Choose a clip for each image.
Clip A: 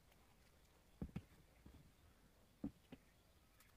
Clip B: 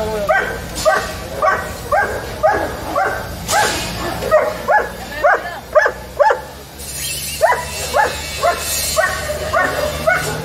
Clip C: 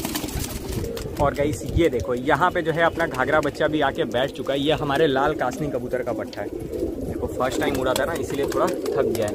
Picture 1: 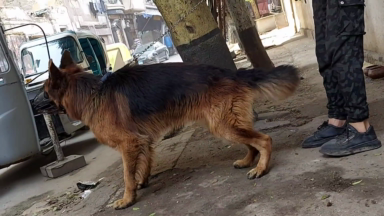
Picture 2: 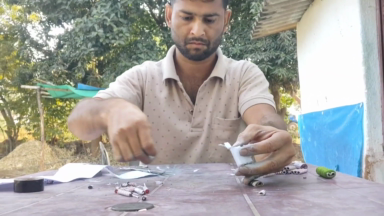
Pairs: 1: B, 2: A